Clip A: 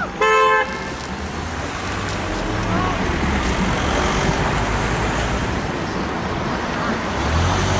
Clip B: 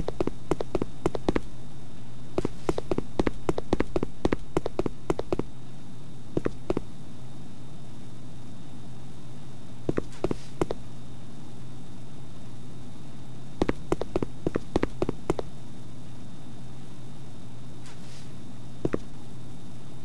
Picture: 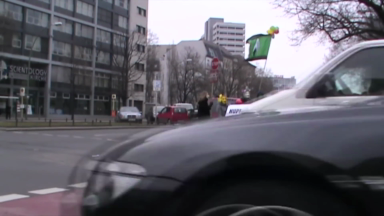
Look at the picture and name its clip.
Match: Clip A